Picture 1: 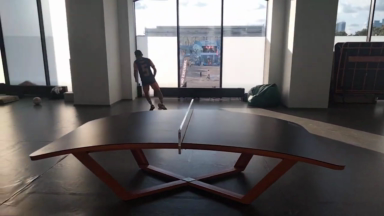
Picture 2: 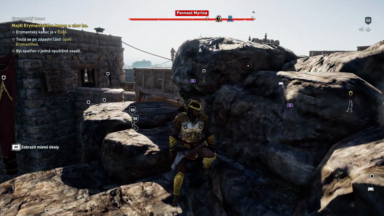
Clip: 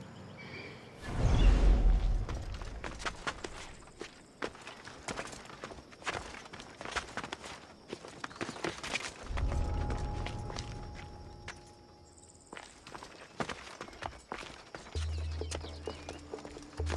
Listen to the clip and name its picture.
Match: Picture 2